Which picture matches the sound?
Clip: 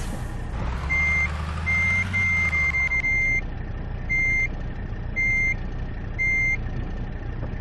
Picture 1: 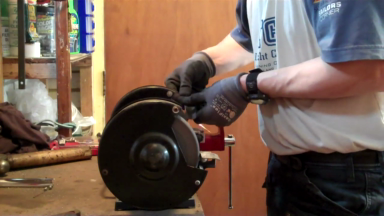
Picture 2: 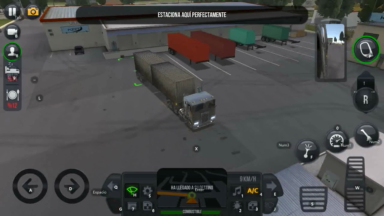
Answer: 2